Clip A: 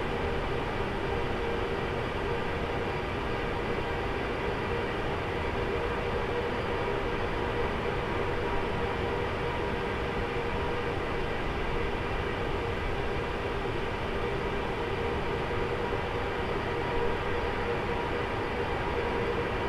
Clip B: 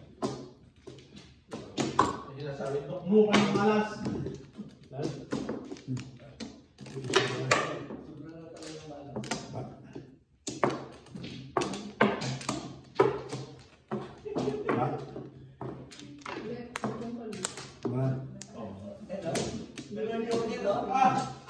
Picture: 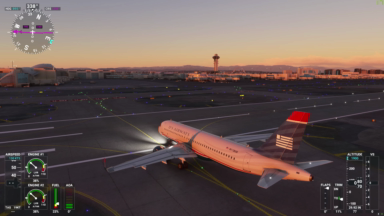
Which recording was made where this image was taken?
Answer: A